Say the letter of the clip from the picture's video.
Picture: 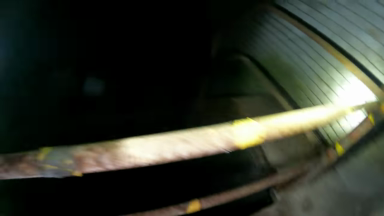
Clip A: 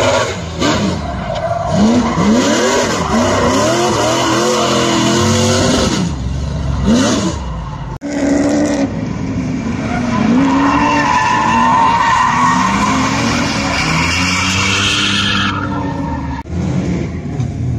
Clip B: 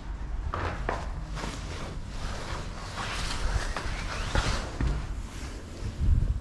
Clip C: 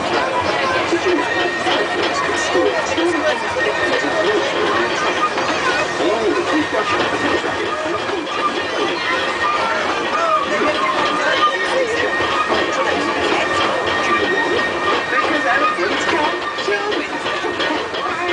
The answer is B